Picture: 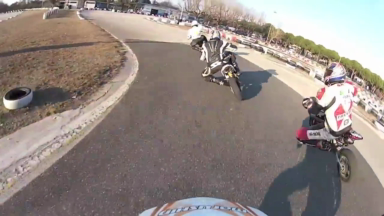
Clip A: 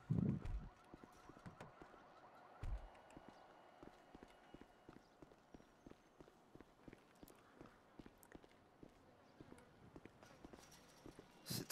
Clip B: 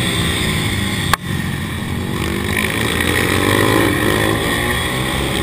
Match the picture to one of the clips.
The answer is B